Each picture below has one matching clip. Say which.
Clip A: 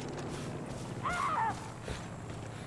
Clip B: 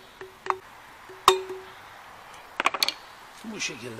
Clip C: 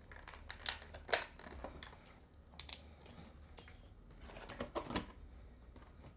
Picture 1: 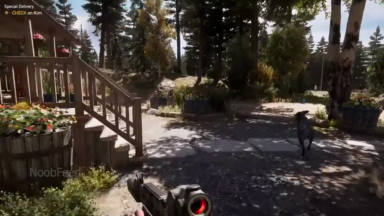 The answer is A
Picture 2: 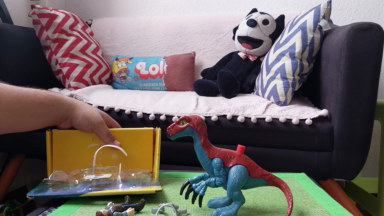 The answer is C